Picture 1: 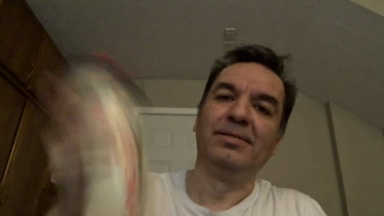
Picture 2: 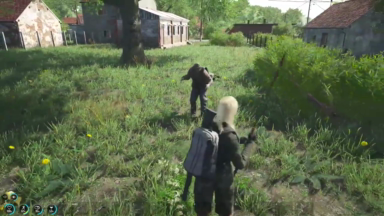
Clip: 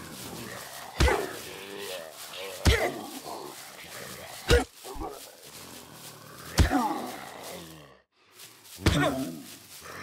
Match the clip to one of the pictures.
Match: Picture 2